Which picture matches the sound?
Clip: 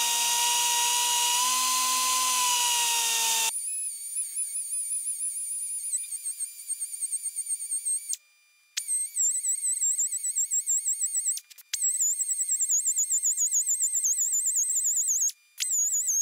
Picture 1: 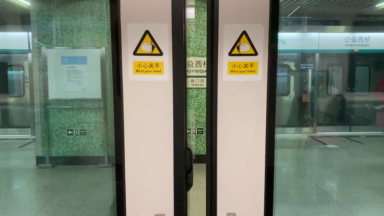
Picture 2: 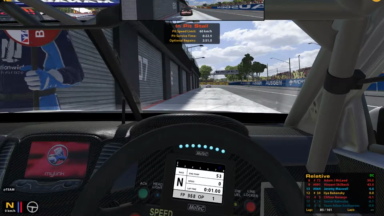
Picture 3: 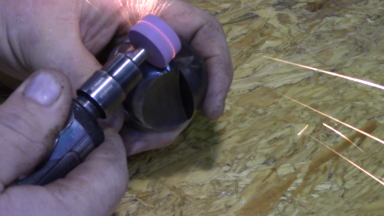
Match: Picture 3